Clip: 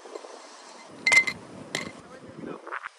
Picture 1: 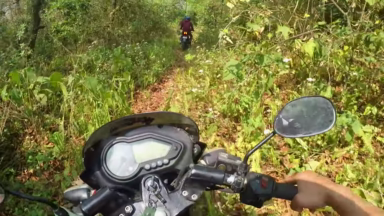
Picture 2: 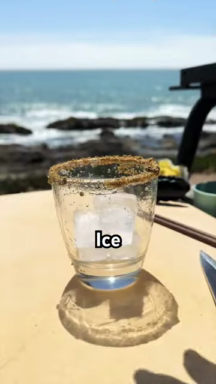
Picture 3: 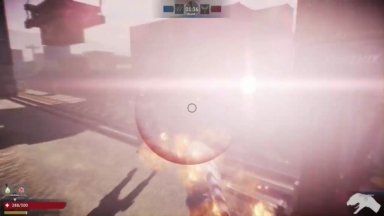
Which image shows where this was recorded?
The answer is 2